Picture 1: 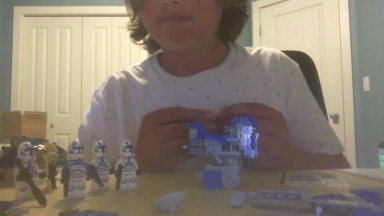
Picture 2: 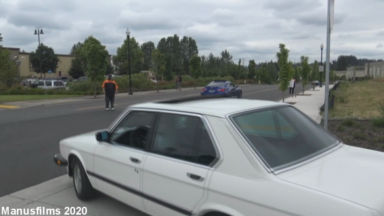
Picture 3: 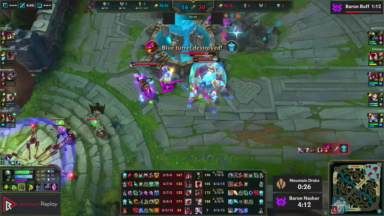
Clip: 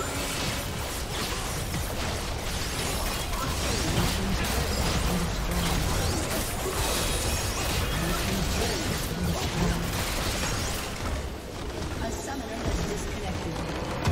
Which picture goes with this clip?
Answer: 3